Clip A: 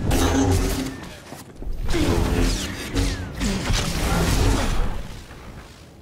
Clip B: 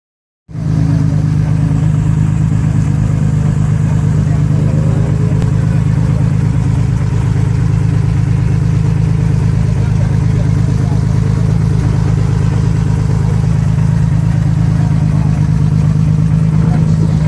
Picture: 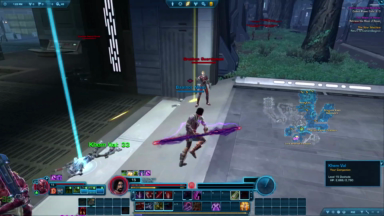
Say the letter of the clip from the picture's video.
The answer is A